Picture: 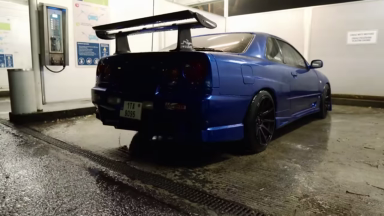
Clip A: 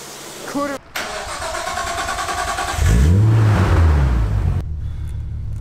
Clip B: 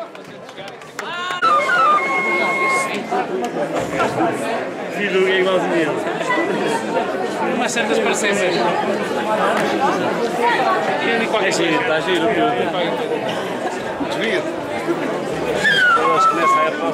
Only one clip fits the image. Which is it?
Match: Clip A